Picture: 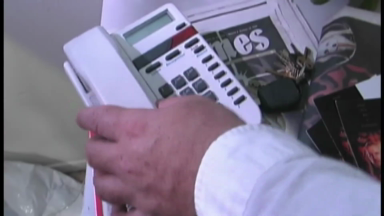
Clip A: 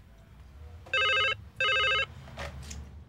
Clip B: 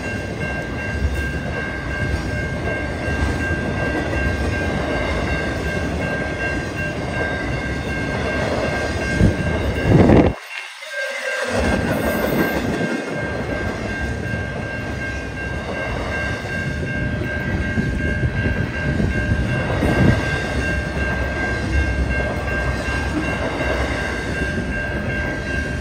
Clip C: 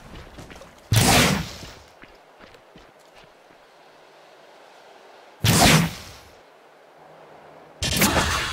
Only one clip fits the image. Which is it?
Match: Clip A